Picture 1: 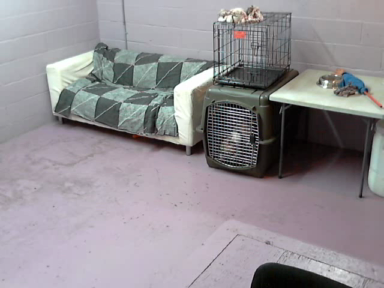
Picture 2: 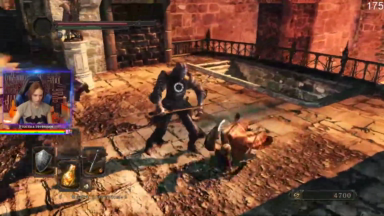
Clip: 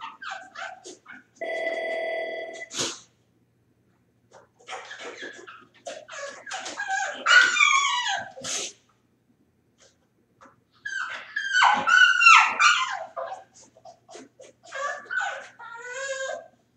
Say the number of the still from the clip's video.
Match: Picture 1